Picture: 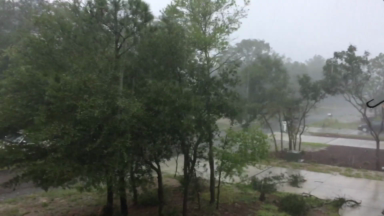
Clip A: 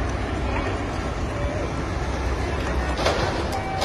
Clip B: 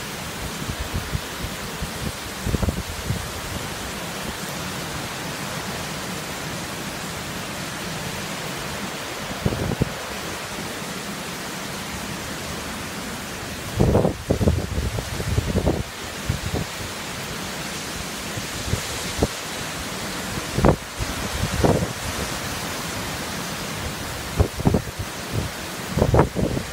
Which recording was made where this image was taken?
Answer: B